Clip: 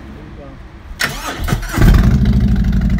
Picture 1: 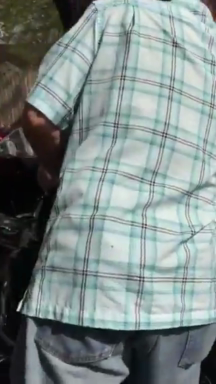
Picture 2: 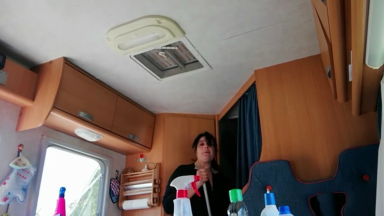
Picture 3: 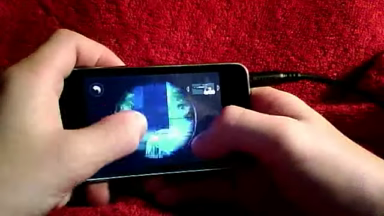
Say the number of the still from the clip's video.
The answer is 1